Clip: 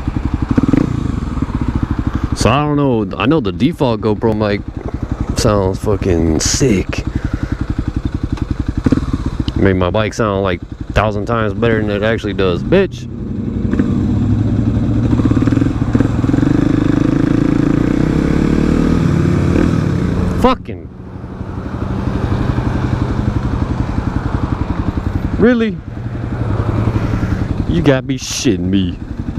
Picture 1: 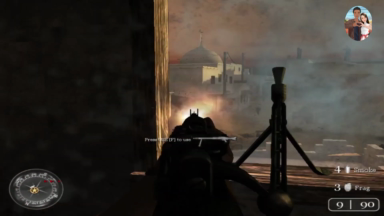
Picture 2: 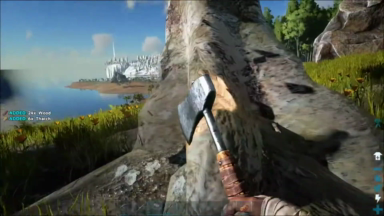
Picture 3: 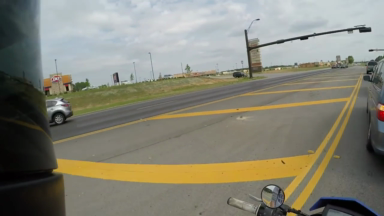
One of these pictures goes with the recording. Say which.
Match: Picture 3